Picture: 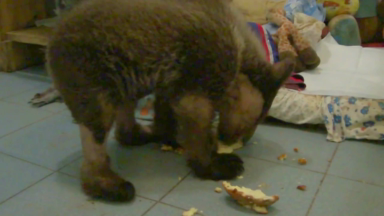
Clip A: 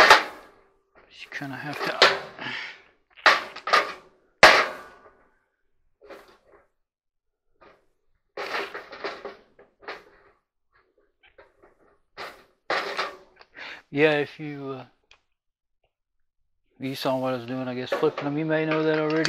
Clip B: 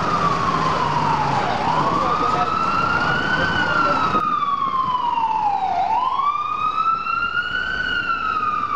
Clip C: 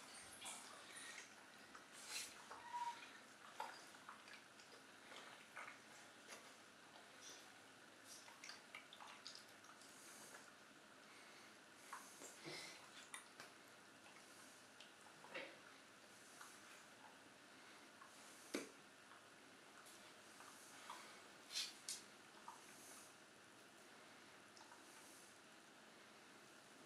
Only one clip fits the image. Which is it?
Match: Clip C